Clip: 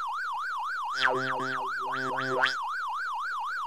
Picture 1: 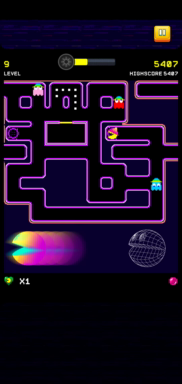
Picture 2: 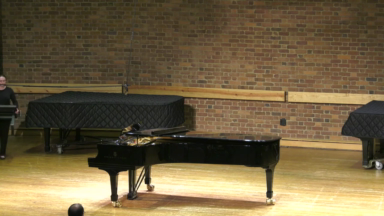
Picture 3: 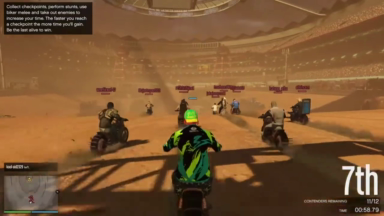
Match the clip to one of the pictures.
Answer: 1